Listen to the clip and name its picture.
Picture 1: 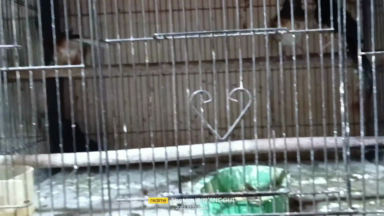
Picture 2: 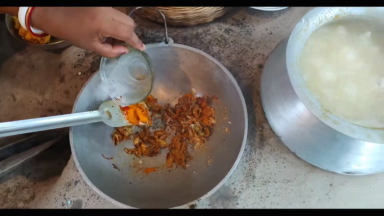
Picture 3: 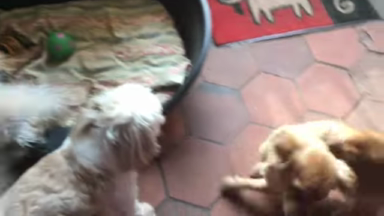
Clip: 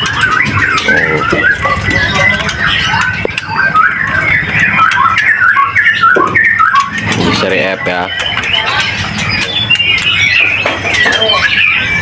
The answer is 1